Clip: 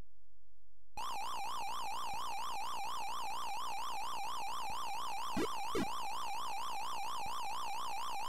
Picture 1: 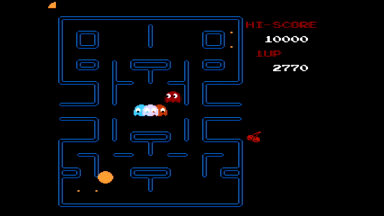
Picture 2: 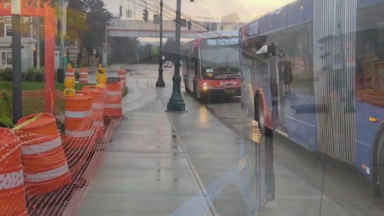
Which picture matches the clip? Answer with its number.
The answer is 1